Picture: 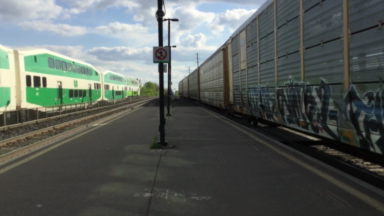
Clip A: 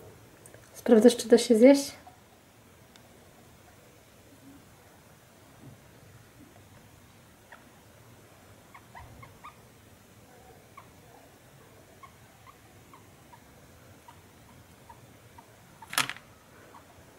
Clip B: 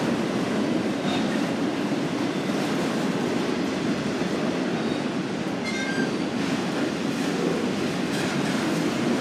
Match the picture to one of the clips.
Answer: B